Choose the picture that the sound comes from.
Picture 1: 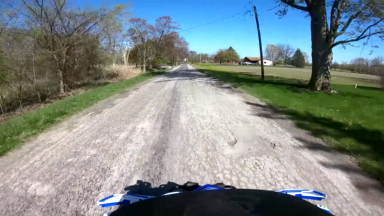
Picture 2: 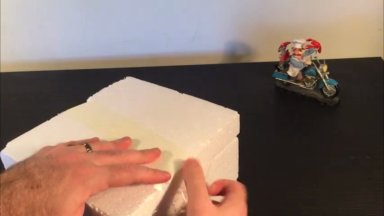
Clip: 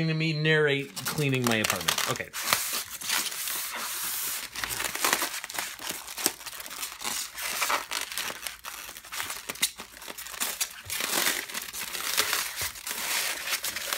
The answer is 2